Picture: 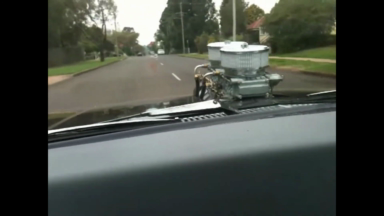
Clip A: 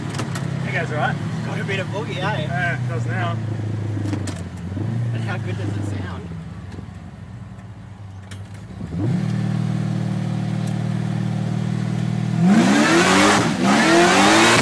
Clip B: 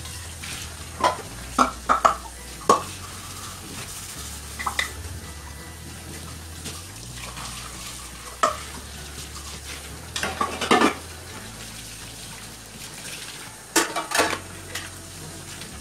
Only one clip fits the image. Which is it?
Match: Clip A